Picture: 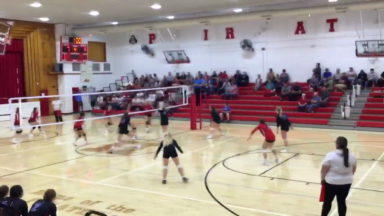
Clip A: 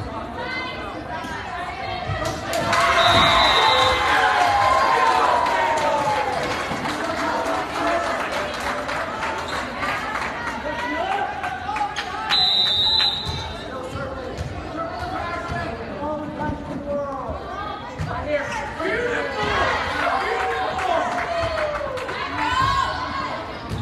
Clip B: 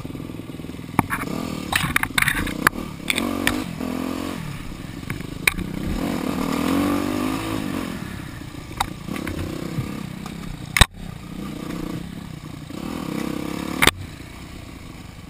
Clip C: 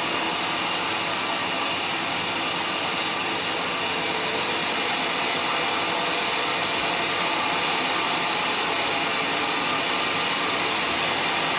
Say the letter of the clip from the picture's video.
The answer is A